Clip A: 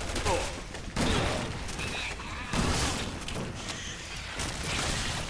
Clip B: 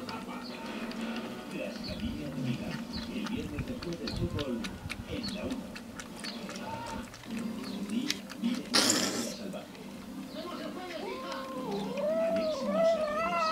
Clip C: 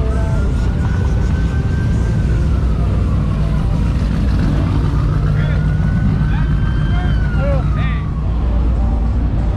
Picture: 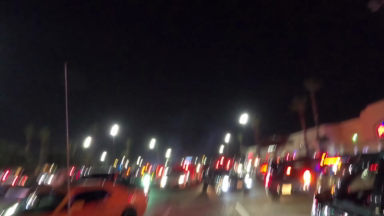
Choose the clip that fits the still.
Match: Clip C